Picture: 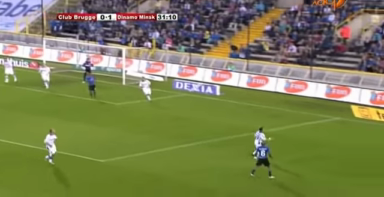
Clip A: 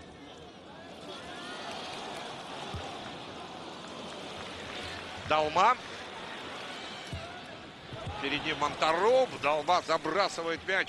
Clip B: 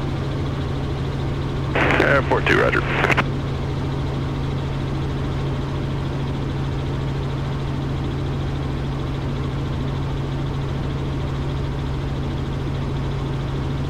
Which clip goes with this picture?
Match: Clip A